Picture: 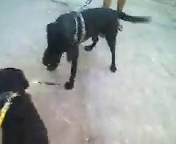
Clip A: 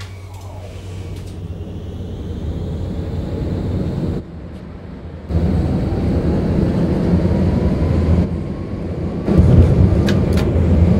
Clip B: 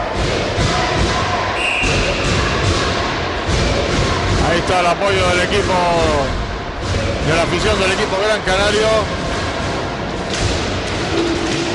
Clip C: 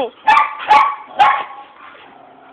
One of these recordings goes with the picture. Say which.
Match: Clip C